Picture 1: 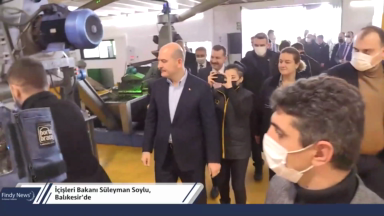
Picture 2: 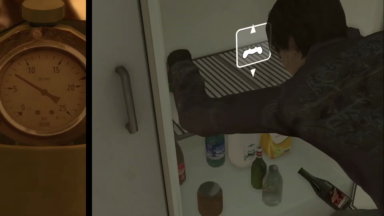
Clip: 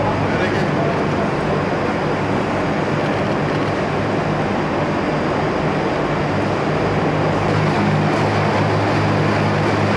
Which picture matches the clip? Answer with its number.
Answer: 1